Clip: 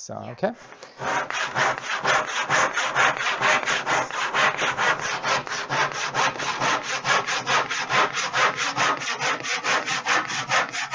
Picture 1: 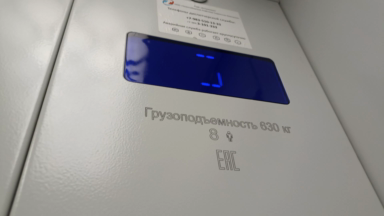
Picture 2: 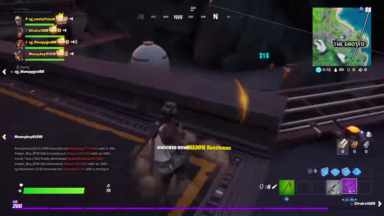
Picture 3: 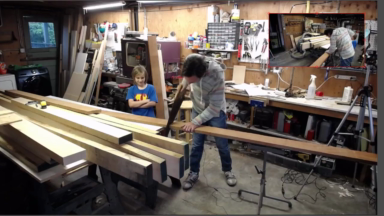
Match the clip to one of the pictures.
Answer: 3